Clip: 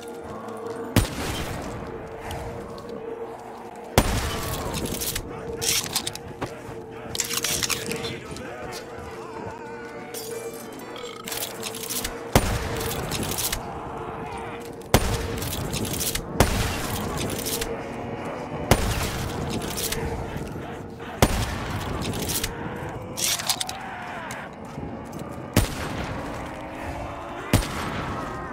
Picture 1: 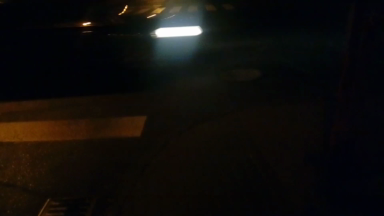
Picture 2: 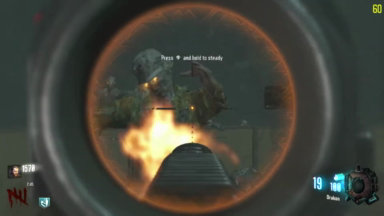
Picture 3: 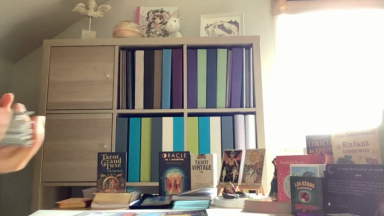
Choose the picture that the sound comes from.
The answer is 2